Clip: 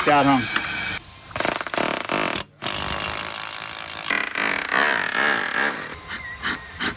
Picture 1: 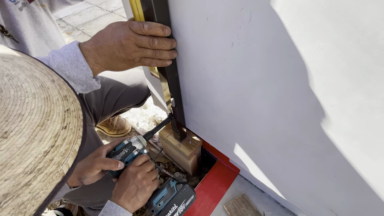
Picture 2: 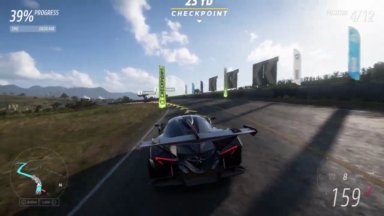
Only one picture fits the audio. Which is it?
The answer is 1